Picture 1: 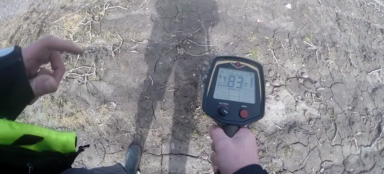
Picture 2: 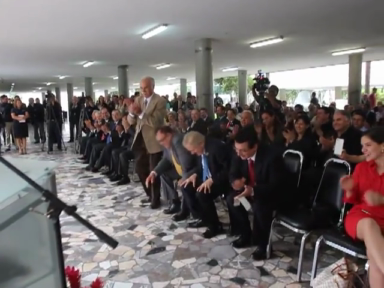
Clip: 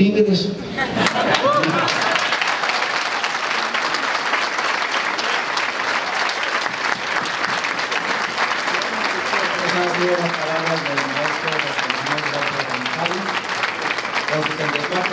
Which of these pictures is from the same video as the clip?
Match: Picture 2